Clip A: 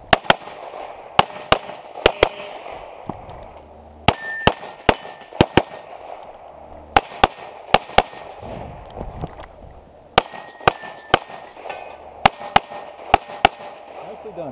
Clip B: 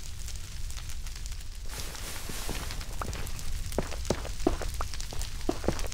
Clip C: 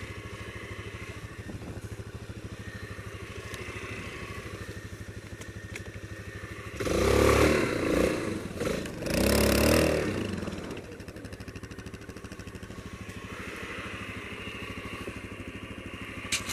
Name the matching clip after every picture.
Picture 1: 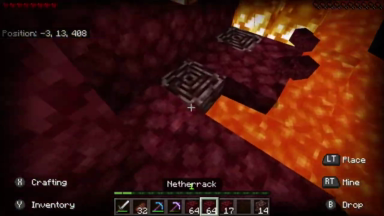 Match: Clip B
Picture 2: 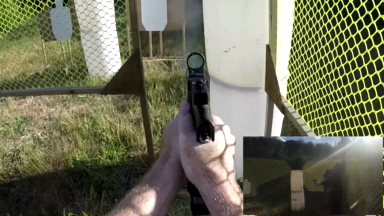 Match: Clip A